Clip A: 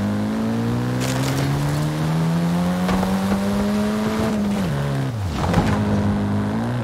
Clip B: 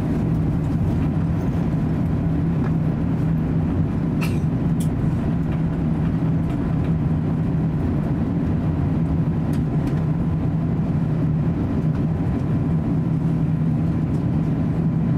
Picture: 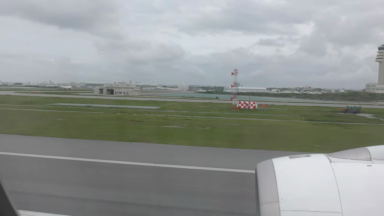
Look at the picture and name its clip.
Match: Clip B